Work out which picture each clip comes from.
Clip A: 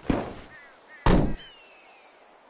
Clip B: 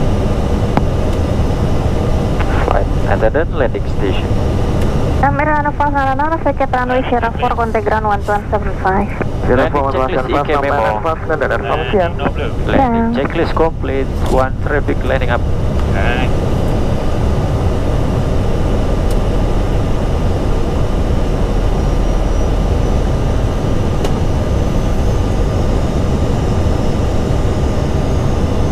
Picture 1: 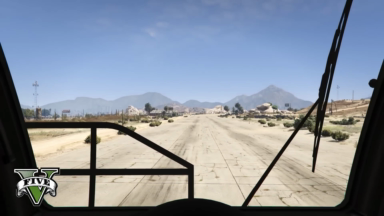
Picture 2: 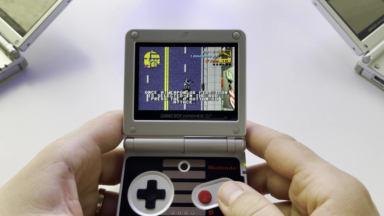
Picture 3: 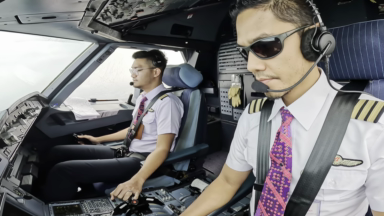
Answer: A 1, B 3